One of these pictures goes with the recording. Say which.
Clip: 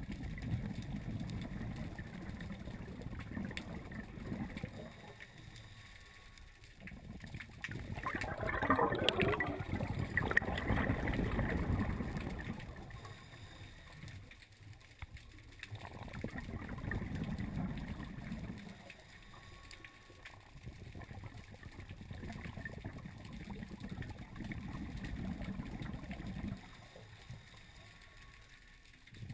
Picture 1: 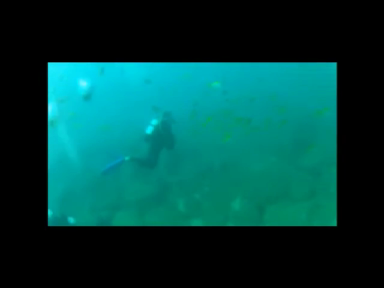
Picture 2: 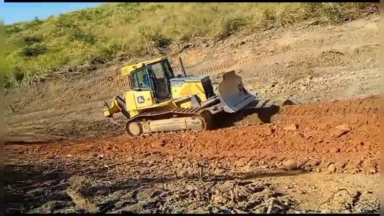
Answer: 1